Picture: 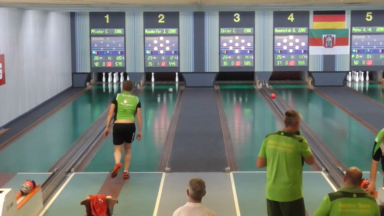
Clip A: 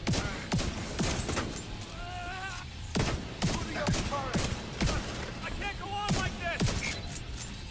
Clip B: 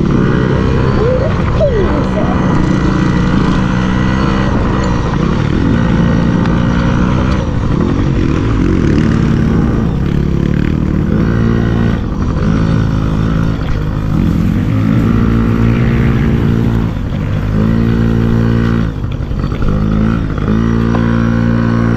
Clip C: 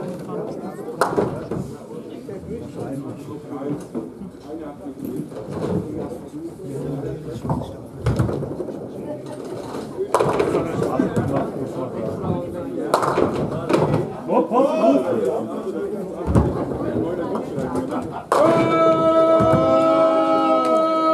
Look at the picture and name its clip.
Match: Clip C